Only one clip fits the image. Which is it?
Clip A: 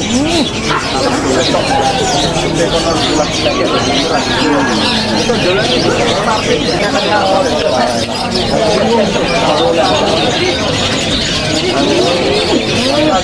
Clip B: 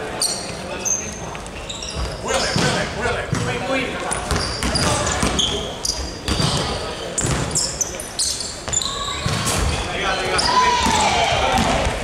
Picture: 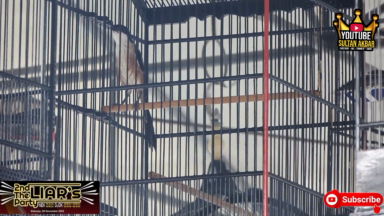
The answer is A